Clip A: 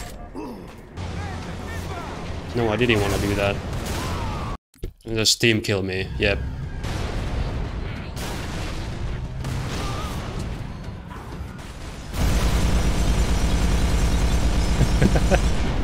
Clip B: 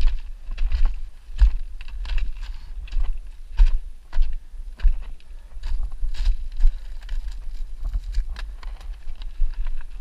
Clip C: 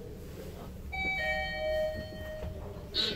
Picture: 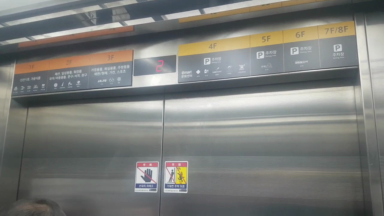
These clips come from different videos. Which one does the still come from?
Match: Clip C